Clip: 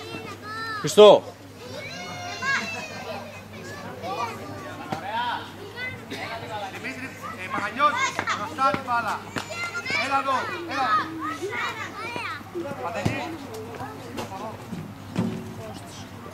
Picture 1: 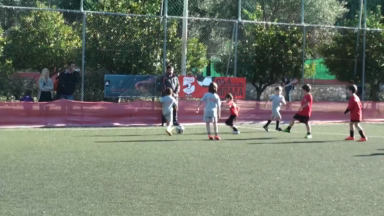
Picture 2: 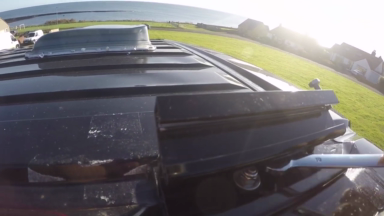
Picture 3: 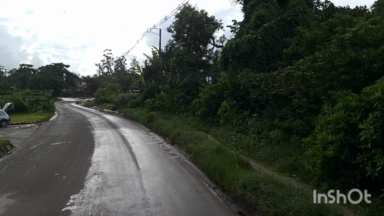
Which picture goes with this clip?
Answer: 1